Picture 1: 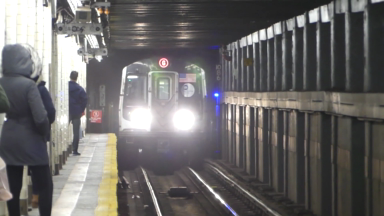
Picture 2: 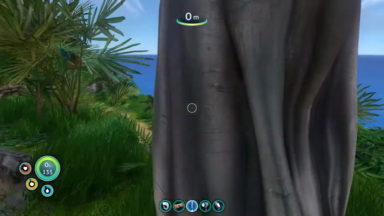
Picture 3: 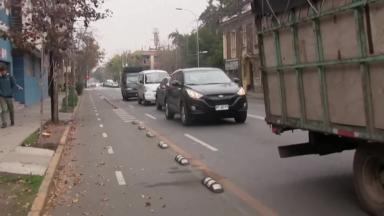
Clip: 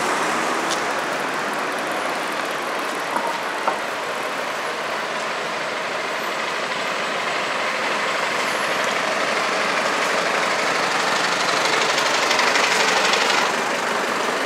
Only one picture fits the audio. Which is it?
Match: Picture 3